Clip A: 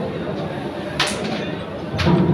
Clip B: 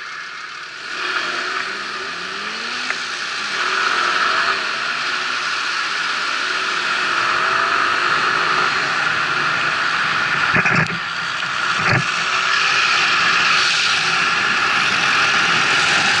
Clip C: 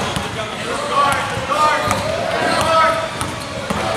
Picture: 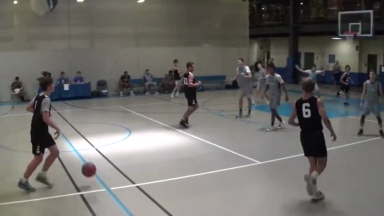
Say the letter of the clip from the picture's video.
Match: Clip C